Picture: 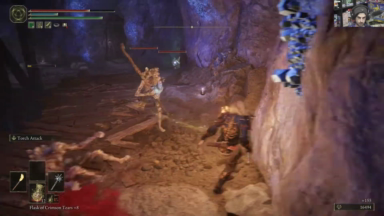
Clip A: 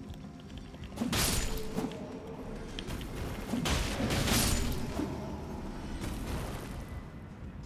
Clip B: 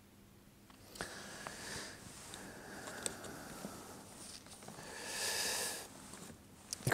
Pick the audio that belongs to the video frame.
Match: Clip A